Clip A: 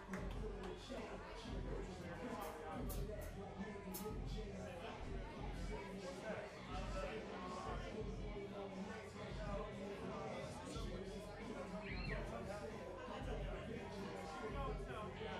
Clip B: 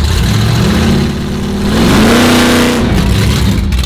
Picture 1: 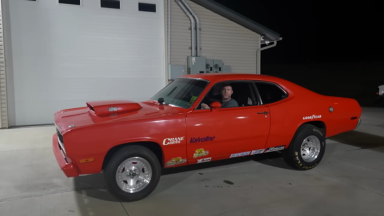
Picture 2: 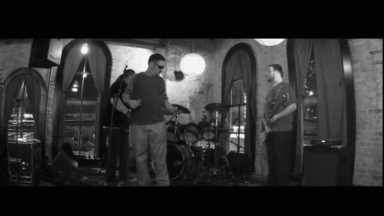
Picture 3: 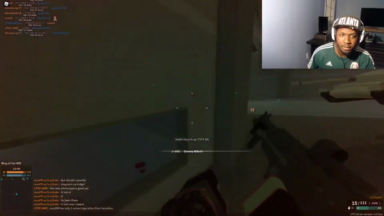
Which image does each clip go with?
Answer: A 2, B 1